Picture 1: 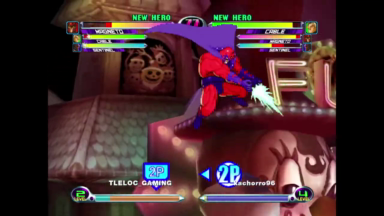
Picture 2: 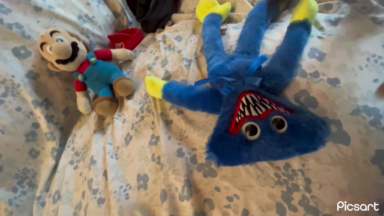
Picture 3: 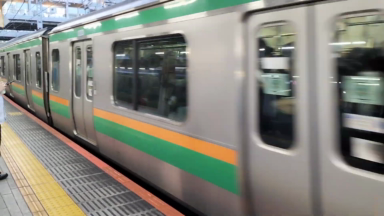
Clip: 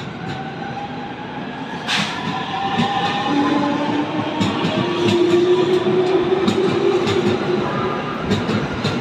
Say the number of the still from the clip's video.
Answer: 3